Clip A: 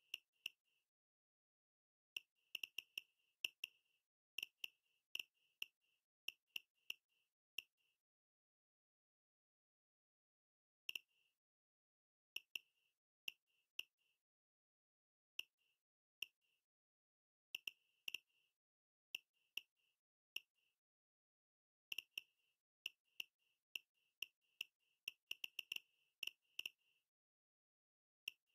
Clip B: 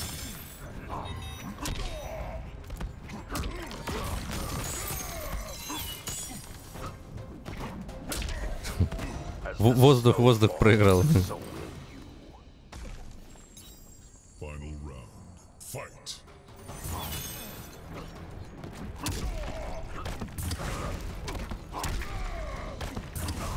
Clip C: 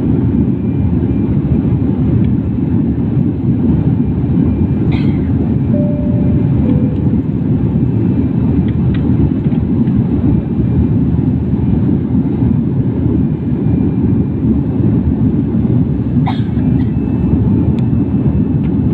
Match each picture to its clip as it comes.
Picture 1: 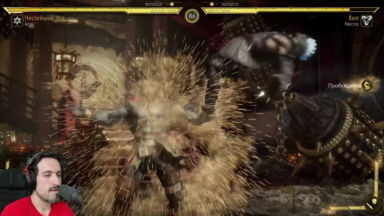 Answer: B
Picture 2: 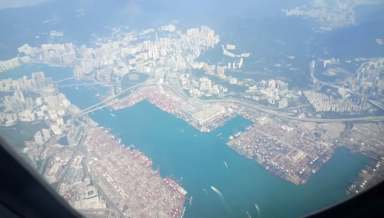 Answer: C